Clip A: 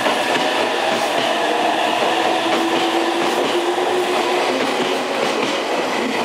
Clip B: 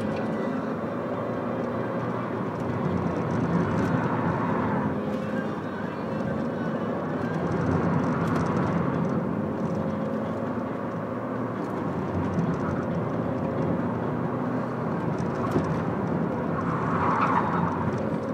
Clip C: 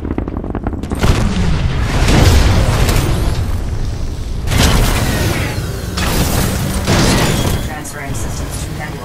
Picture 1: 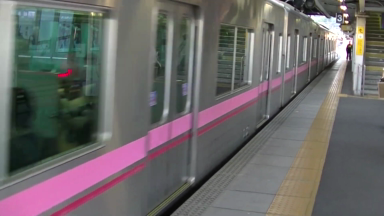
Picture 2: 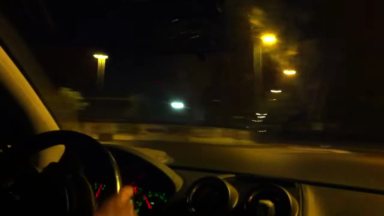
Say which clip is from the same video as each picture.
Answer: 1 A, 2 B